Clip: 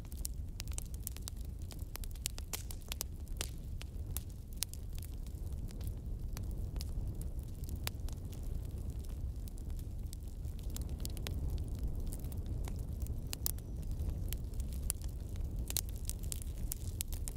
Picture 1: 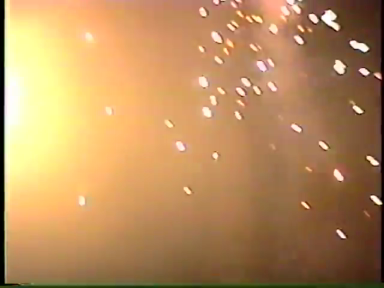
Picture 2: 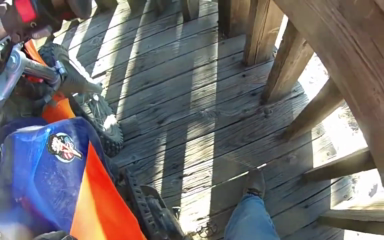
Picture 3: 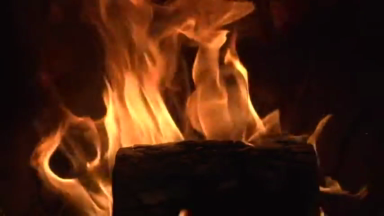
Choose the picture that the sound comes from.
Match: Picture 3